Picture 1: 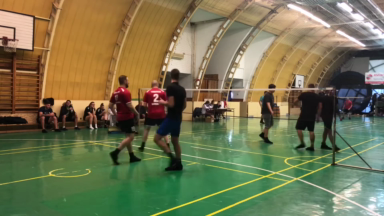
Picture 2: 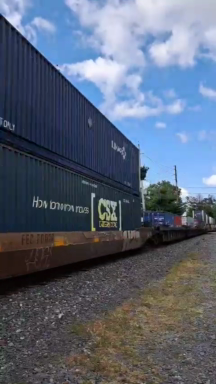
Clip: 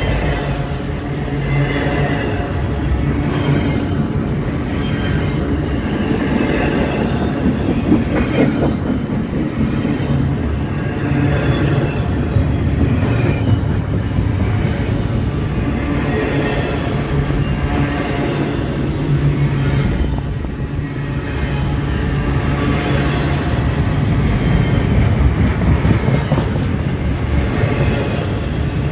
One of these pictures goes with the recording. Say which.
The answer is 2